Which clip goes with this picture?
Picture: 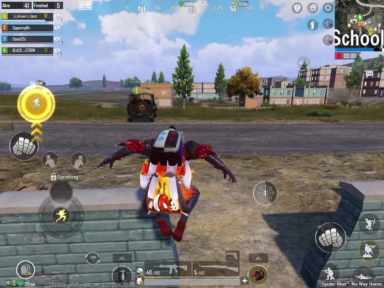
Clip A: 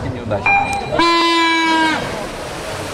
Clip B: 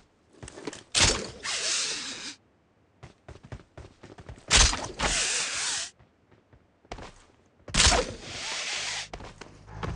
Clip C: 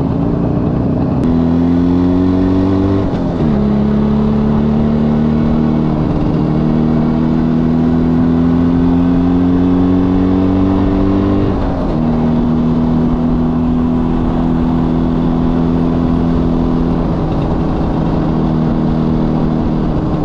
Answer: B